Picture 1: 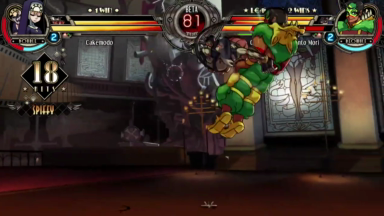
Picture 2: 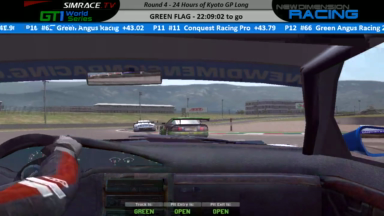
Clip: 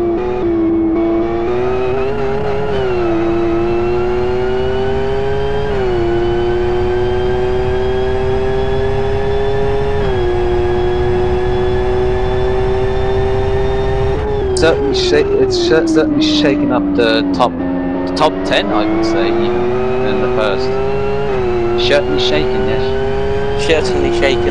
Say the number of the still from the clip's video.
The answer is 2